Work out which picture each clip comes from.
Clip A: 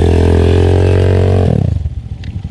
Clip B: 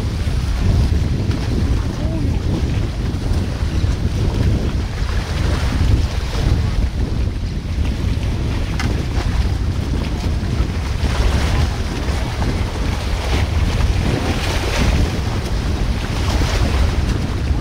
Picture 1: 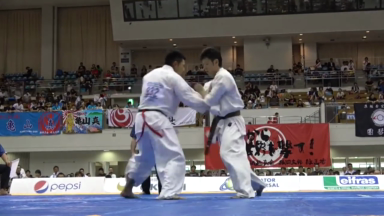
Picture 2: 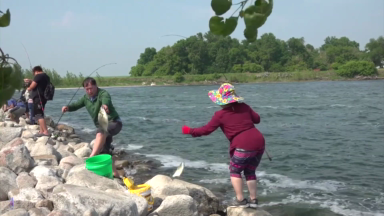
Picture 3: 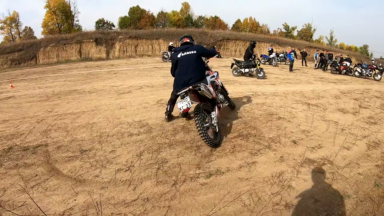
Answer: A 3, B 2